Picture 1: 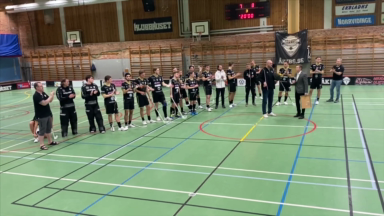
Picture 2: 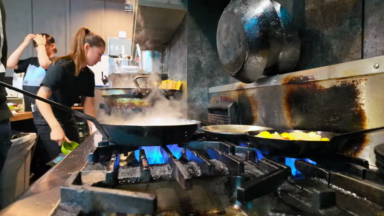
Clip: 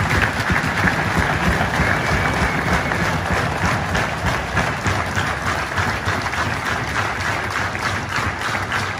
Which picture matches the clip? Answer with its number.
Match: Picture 1